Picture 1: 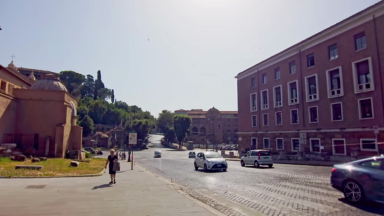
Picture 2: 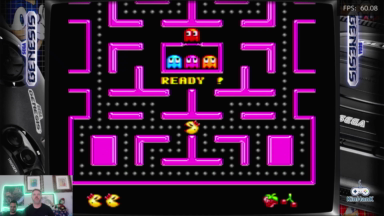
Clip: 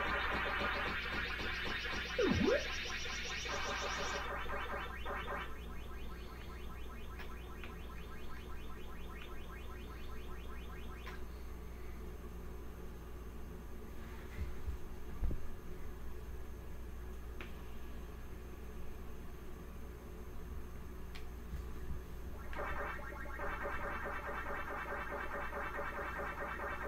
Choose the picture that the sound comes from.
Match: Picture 2